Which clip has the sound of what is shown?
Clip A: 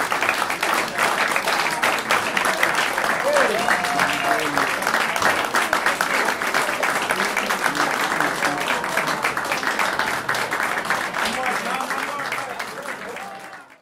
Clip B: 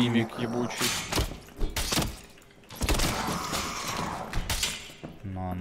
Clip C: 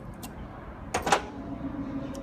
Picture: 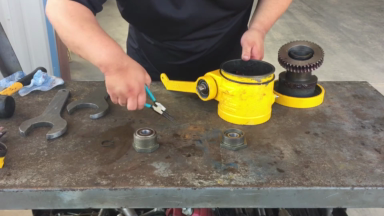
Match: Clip C